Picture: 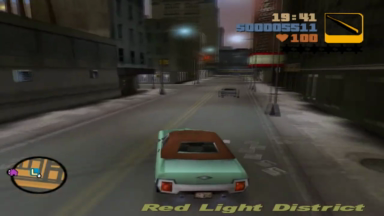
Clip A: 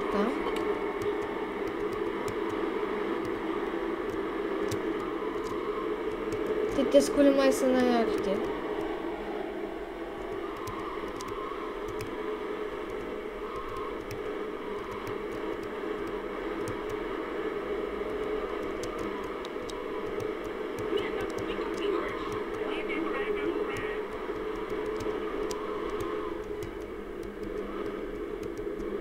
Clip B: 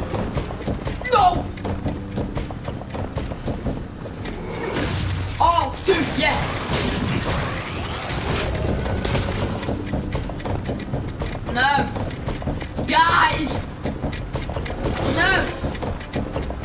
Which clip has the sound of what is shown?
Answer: A